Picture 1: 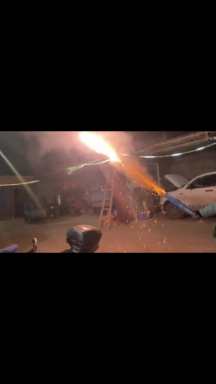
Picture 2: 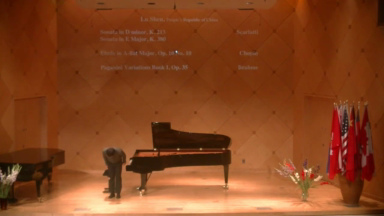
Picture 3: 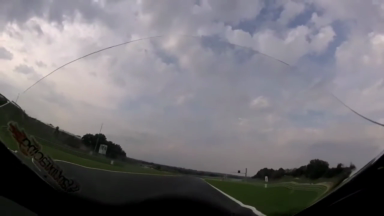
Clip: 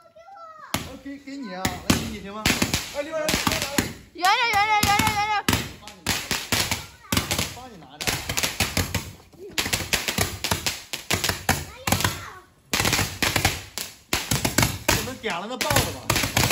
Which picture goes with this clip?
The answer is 1